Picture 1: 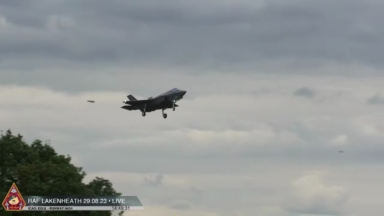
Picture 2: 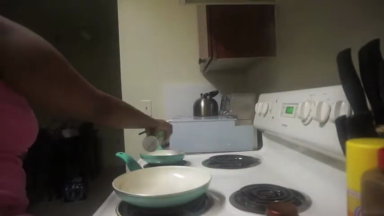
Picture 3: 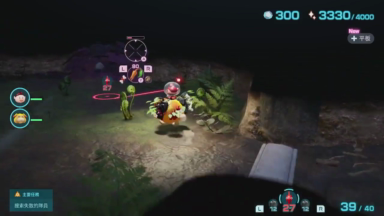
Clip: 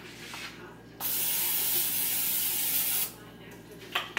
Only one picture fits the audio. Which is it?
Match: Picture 2